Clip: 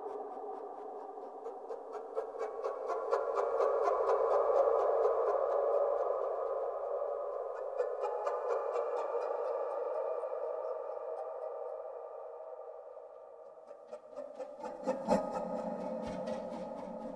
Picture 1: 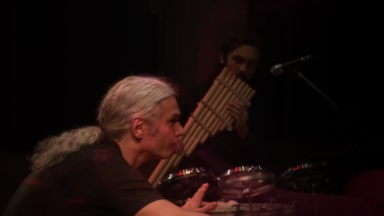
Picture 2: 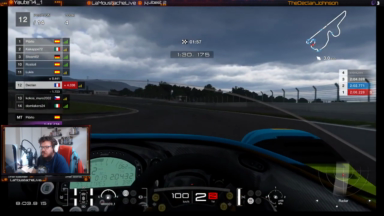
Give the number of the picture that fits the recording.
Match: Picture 1